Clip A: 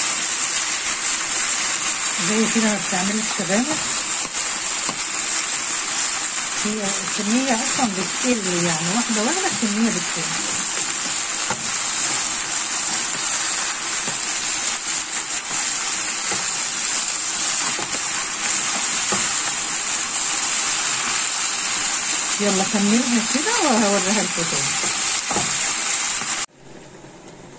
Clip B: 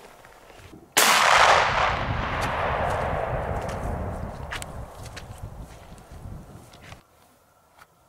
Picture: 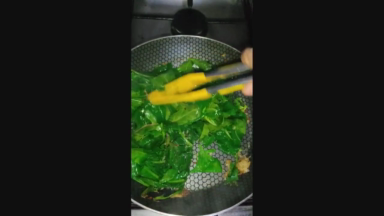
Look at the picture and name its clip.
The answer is A